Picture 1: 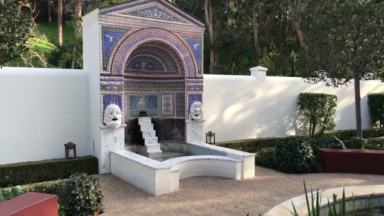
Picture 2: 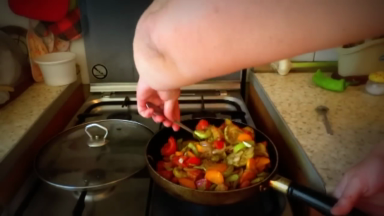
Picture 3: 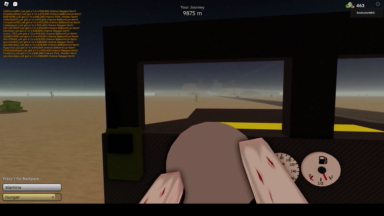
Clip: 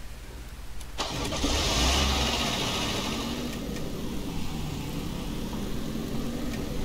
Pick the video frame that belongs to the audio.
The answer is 3